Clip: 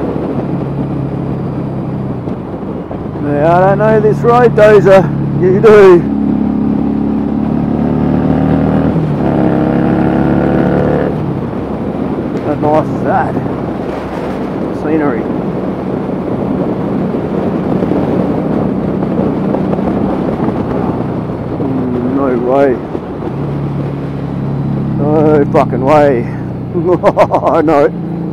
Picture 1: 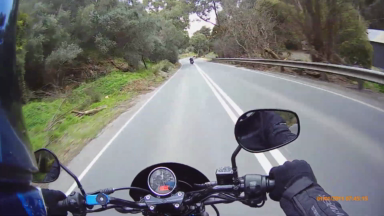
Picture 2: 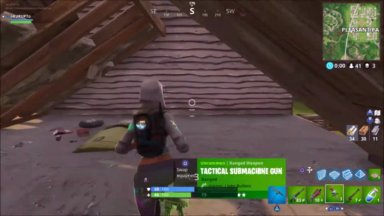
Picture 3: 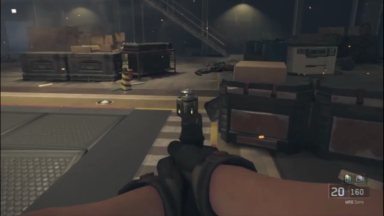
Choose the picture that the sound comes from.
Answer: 1